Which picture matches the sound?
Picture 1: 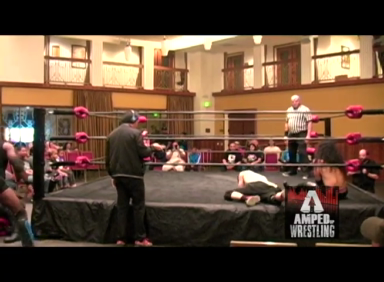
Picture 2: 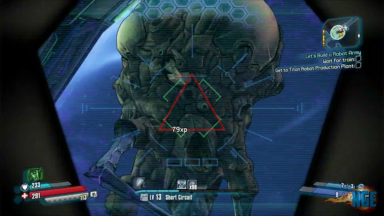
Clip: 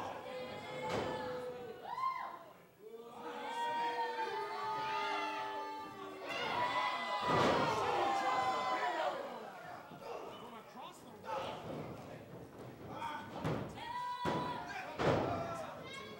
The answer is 1